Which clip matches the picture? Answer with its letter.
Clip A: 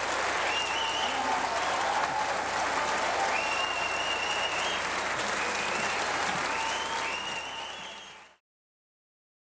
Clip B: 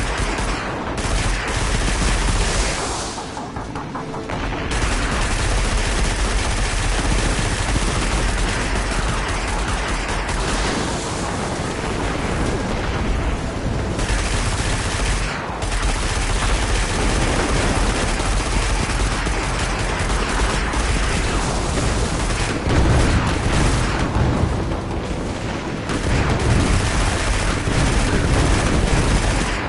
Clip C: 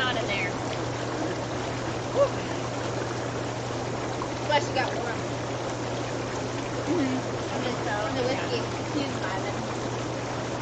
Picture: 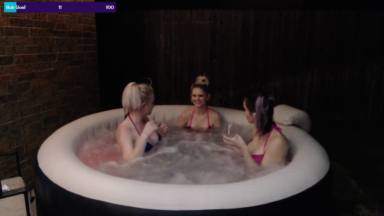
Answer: C